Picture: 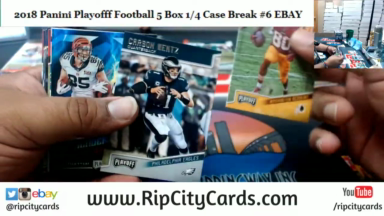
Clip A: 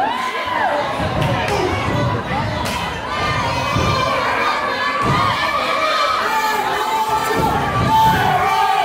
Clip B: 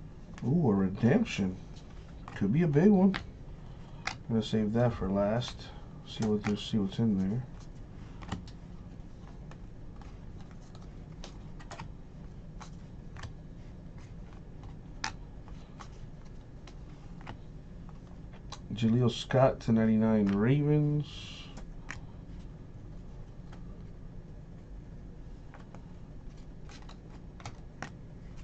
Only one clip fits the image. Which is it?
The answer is B